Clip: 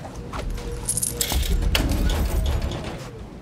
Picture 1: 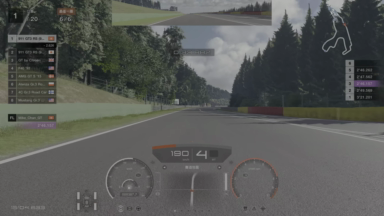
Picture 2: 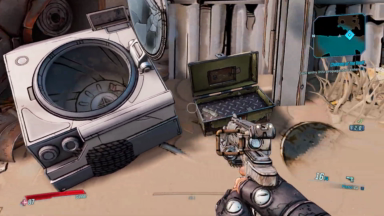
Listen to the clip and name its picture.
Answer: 2